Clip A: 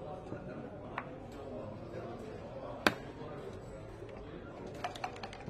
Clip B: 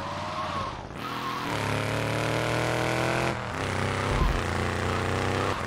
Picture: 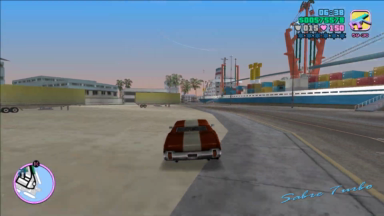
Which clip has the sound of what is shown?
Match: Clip B